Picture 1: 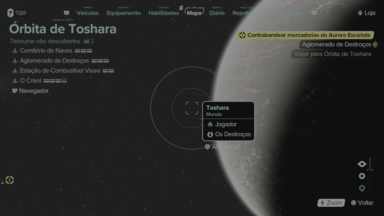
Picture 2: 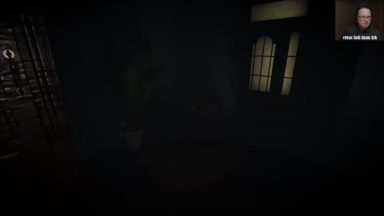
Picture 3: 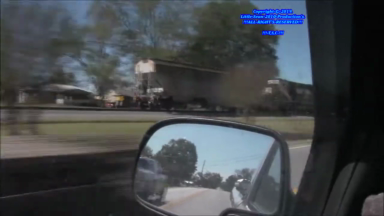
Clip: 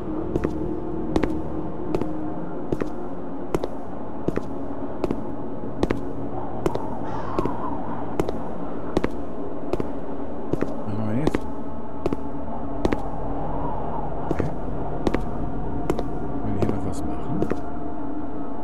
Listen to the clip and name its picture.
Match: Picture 2